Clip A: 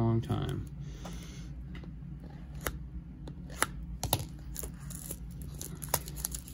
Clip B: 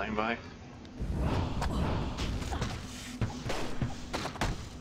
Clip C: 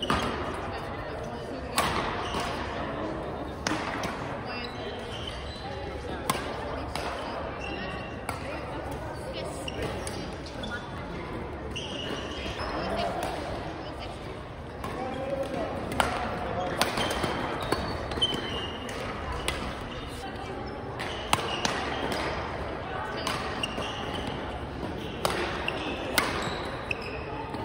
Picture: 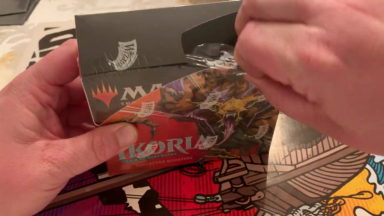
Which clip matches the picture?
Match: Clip A